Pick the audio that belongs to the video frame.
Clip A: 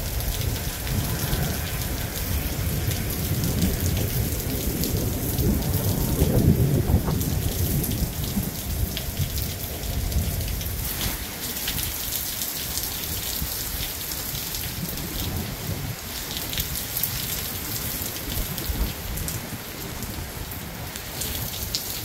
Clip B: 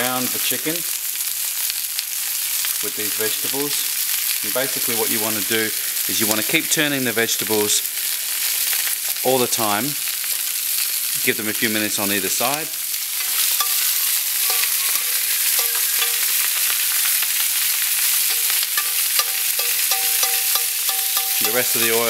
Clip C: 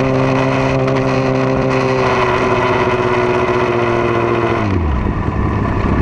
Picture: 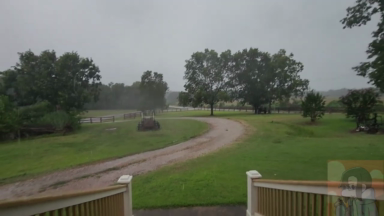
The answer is A